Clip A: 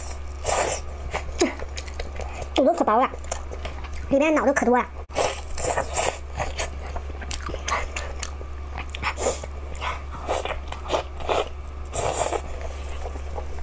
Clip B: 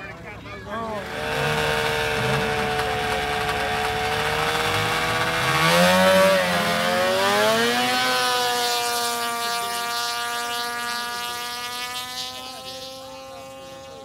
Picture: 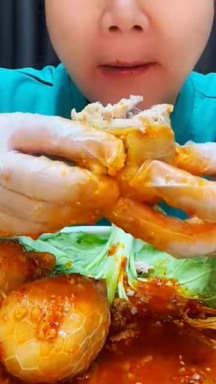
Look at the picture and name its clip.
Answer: A